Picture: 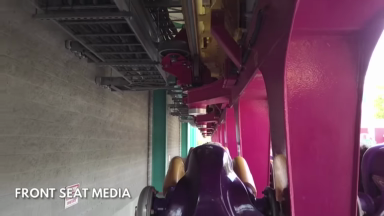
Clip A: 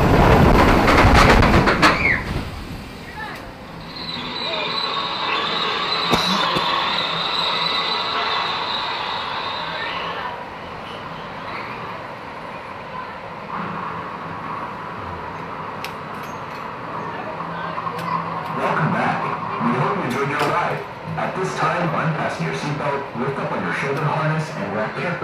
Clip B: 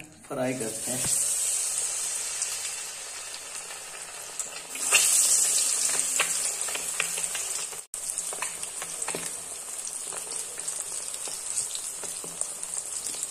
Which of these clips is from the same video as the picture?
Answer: A